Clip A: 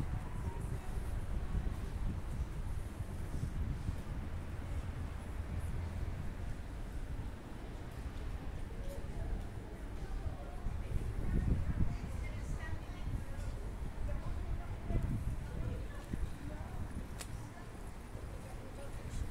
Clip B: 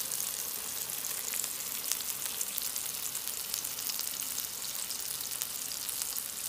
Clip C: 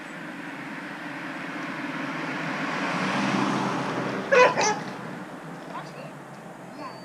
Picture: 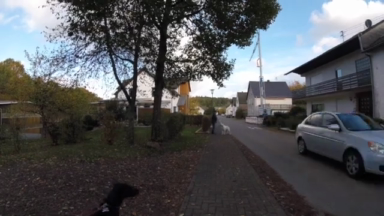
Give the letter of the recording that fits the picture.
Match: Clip C